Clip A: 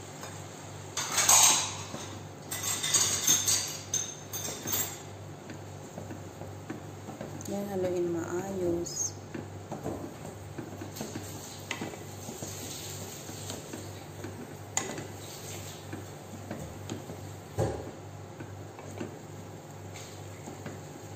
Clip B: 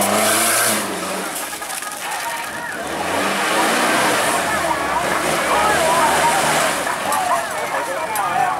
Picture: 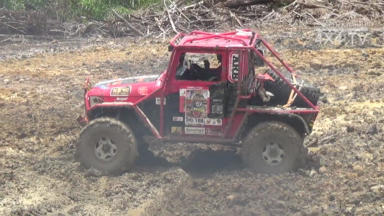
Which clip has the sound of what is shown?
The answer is B